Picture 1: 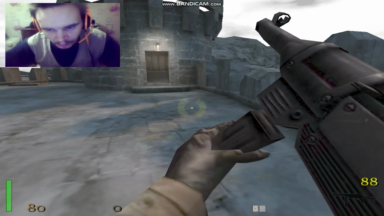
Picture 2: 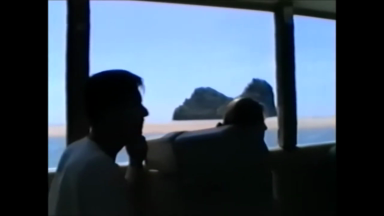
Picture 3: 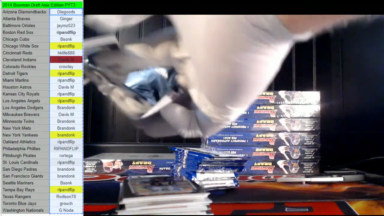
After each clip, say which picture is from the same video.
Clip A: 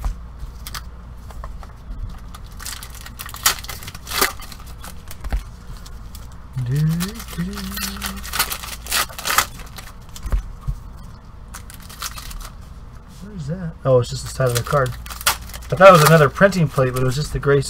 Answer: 3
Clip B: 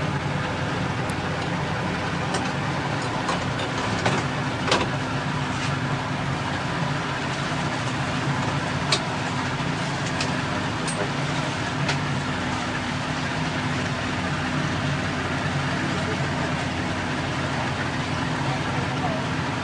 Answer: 2